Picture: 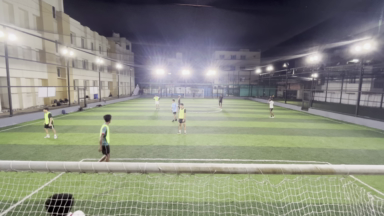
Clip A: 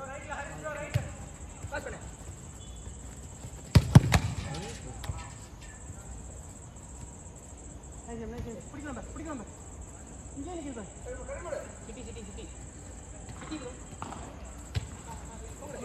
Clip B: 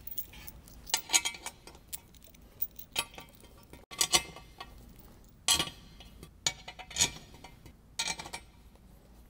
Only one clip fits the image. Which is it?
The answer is A